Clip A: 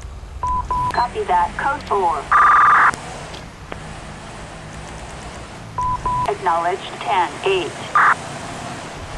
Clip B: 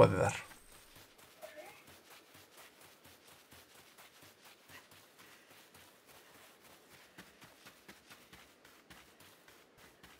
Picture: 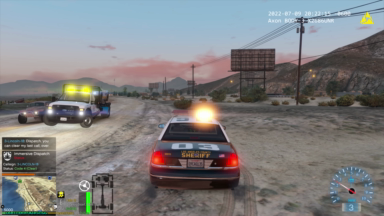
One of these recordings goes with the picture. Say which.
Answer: A